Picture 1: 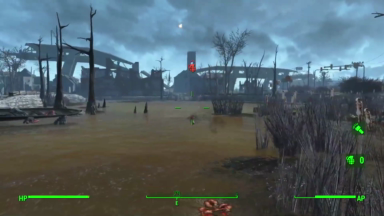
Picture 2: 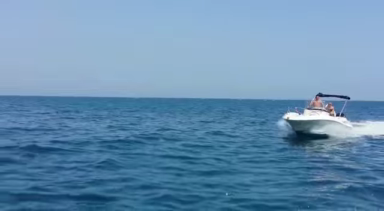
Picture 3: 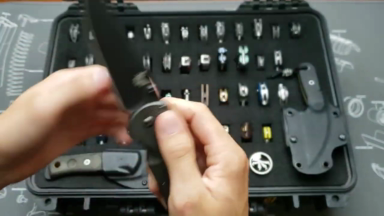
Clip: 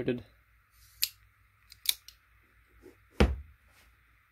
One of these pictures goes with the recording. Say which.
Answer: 3